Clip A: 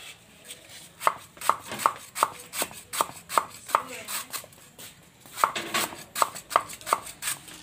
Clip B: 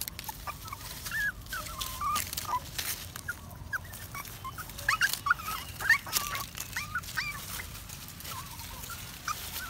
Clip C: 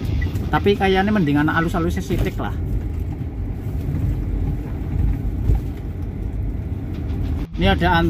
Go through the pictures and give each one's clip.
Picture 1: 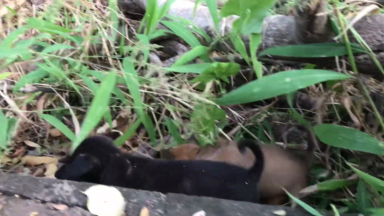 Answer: B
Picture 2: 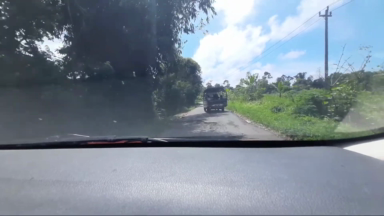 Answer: C